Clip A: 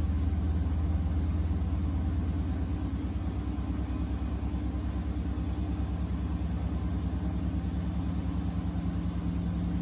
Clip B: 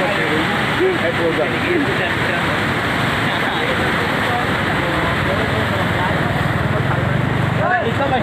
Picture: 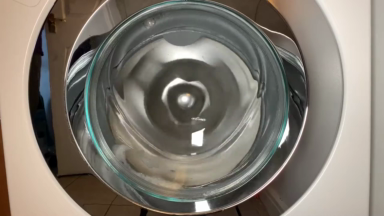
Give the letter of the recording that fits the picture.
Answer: A